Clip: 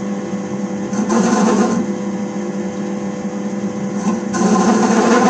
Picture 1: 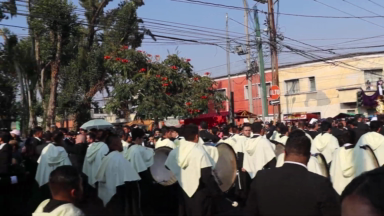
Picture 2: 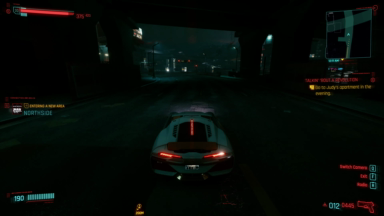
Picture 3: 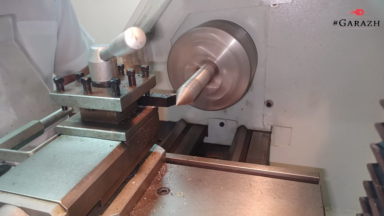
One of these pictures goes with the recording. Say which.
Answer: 3